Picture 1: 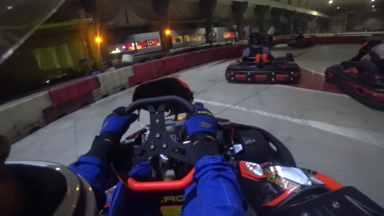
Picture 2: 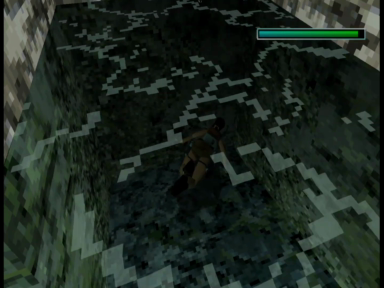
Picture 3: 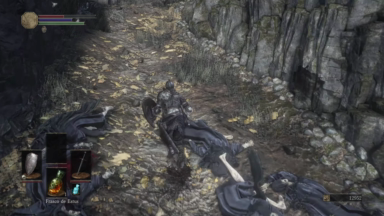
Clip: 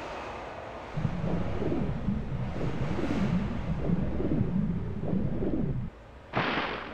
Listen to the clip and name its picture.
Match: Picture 2